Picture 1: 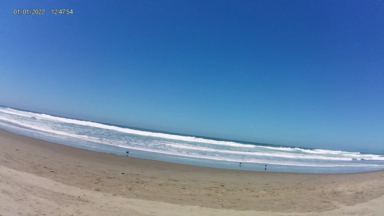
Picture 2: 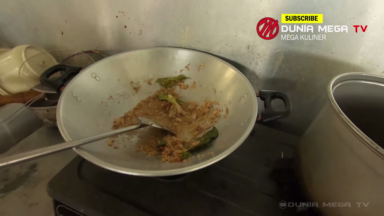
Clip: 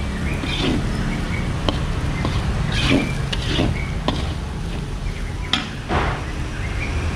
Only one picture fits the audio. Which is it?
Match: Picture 2